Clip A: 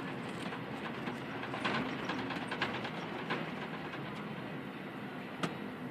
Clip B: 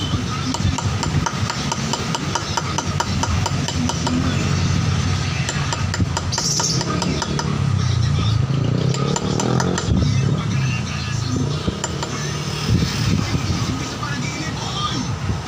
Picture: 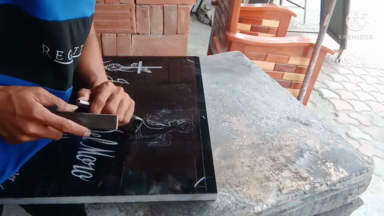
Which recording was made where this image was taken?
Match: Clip B